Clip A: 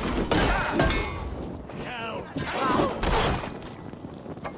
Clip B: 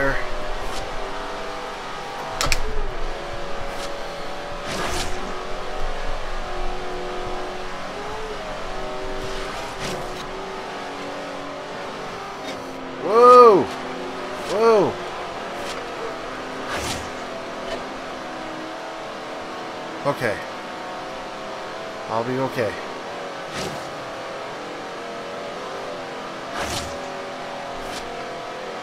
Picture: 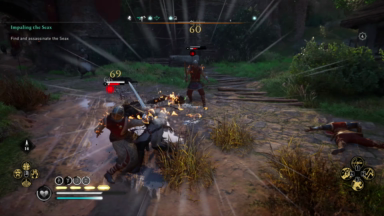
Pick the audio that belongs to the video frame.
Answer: A